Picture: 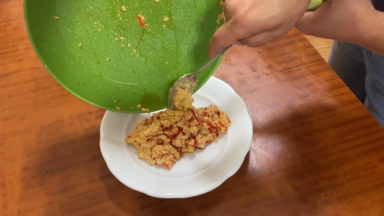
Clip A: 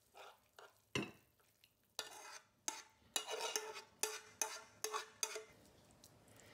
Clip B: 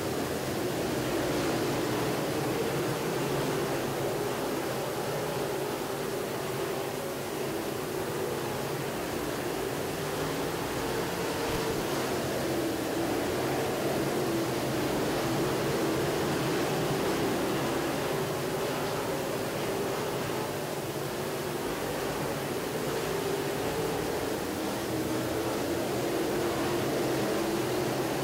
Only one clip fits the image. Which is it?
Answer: A